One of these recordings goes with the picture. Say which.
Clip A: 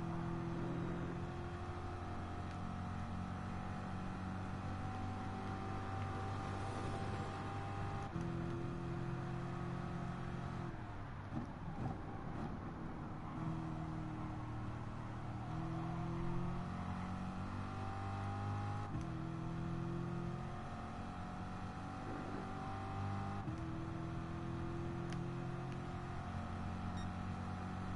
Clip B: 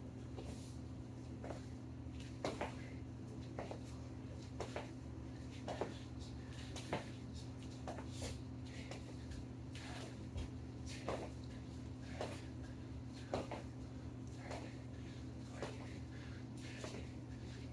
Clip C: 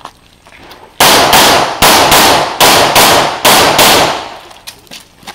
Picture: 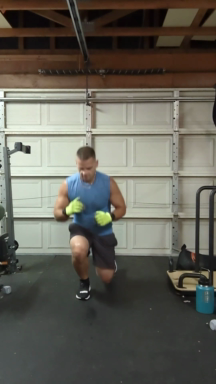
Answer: B